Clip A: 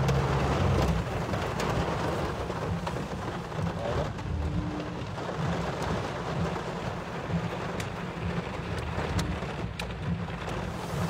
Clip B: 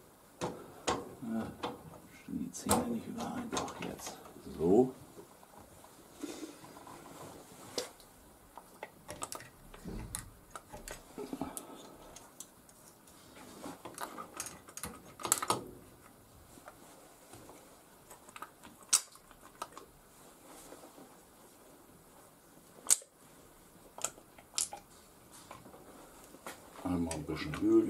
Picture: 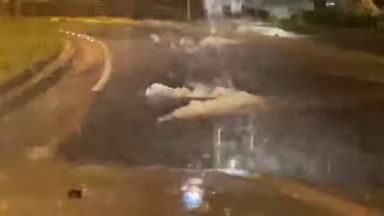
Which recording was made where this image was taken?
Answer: A